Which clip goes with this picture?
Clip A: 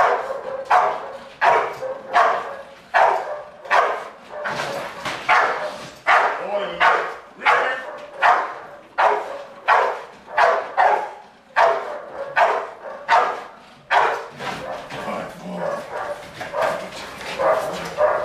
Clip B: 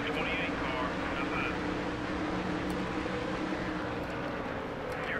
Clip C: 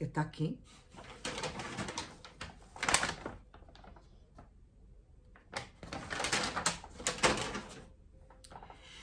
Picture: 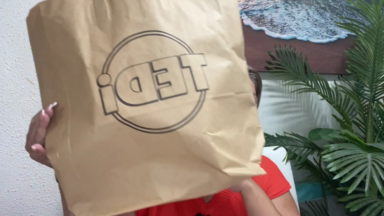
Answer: C